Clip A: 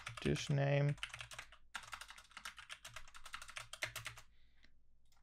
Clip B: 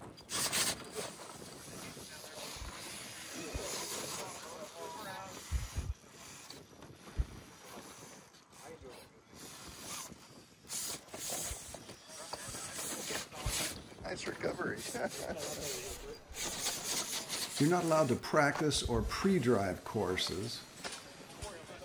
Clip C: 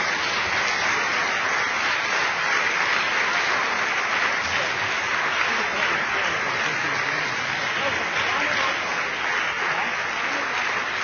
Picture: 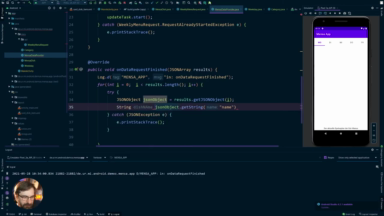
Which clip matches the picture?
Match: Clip A